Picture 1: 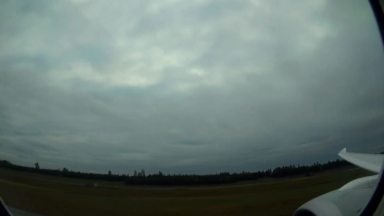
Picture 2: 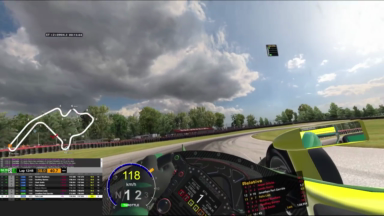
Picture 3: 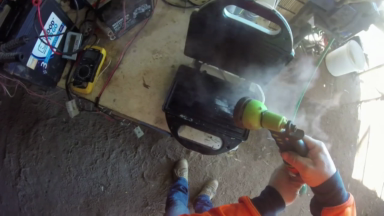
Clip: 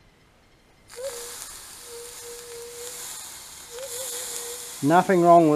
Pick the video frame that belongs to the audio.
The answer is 3